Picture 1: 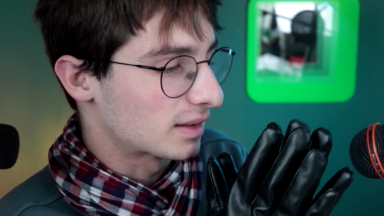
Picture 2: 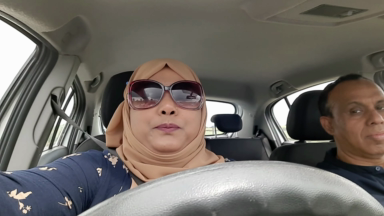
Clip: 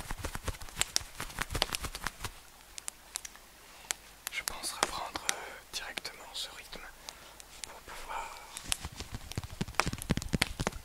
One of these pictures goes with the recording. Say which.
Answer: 1